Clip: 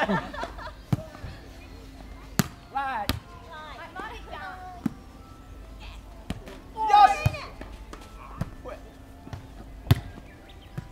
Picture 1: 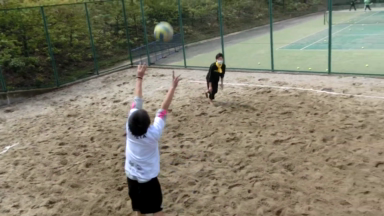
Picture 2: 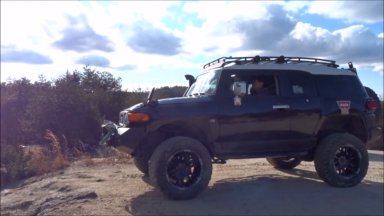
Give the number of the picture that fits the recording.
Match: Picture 1